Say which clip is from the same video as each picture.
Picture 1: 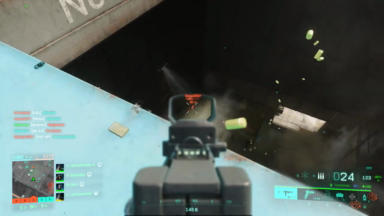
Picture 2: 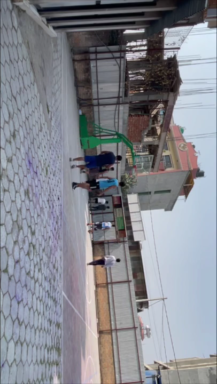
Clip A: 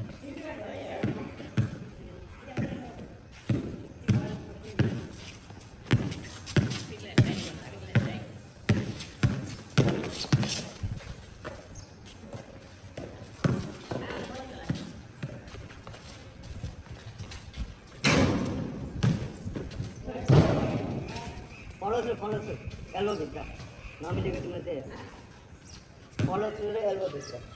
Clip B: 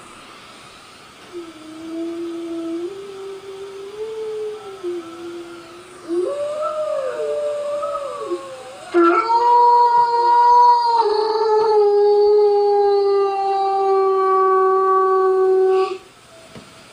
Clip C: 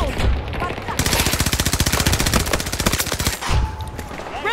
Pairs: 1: C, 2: A